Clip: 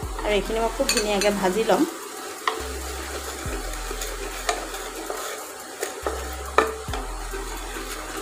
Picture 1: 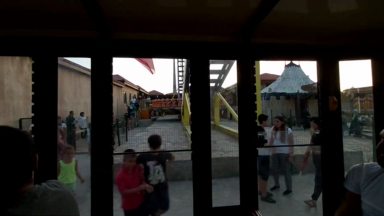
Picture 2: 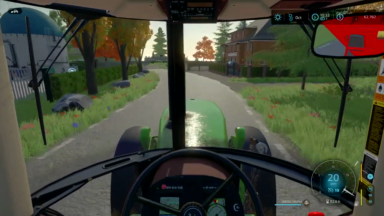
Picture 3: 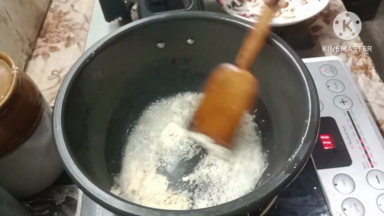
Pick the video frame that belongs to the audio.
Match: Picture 3